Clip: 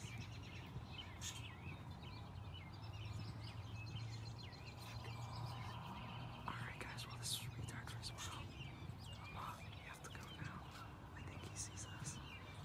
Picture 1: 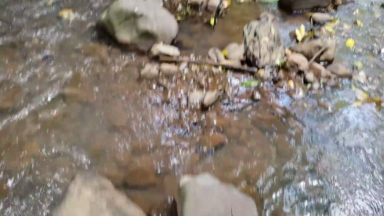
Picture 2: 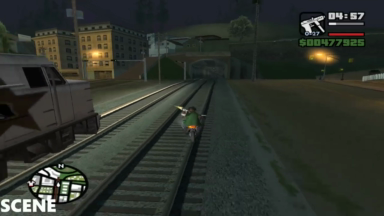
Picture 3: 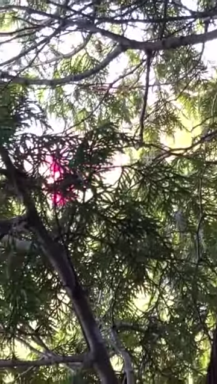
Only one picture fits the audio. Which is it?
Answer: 3